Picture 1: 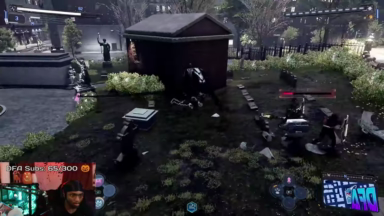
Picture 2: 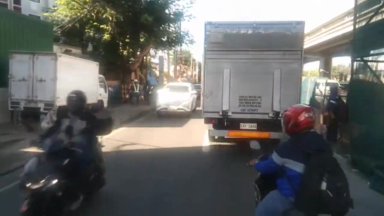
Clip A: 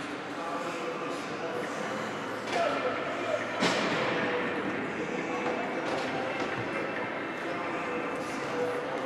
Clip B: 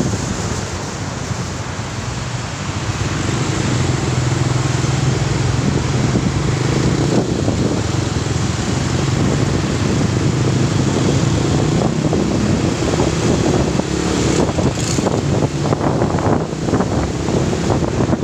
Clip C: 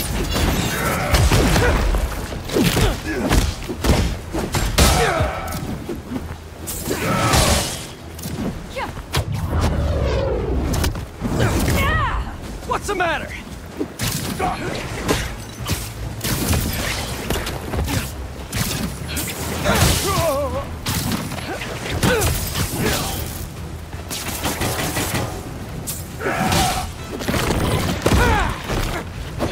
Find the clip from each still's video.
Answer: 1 C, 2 B